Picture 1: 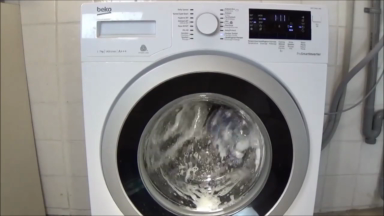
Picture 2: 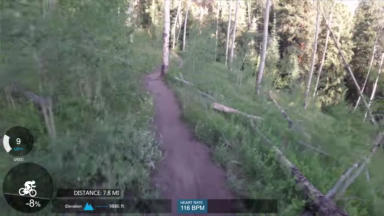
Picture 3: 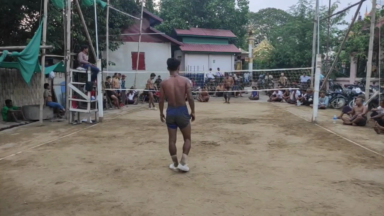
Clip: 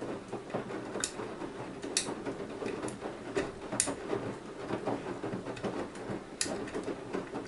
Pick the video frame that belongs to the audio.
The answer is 1